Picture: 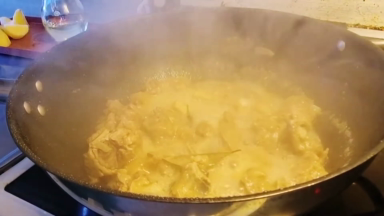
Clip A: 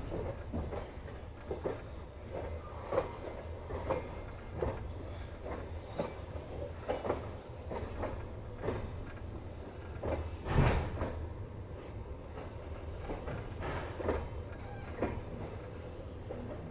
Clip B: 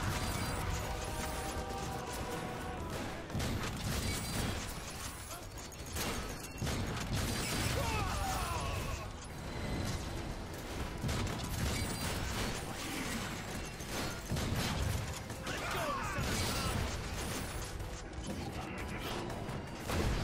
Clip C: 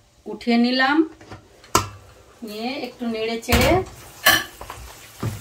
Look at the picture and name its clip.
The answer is C